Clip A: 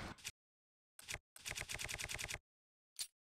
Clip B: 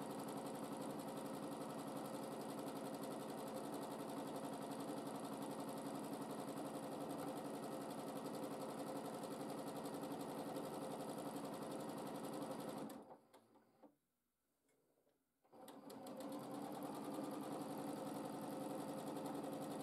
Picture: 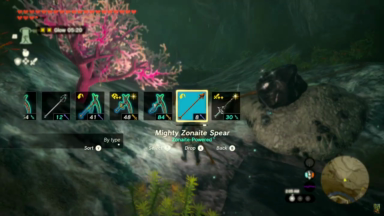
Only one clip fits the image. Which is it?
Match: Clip A